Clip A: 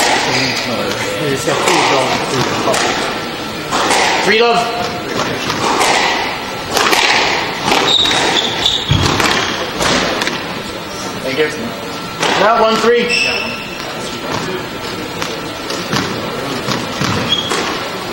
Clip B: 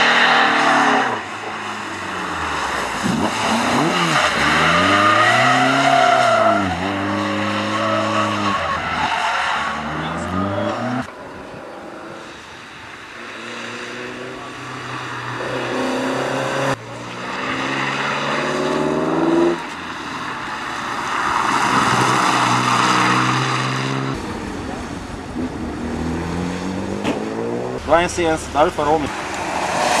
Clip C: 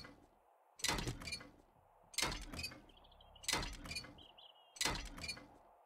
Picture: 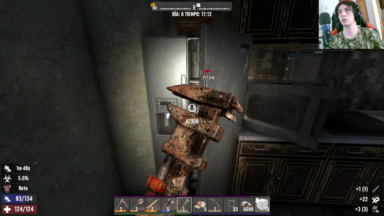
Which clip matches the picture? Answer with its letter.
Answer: C